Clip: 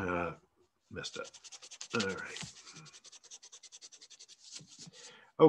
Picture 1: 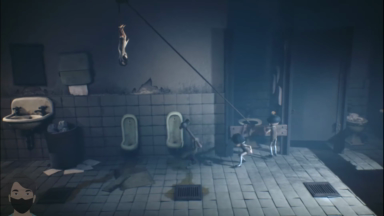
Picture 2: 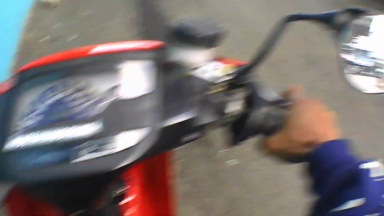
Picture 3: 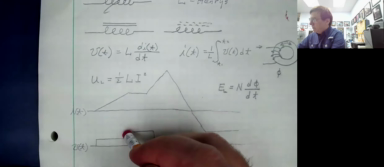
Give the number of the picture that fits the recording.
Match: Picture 3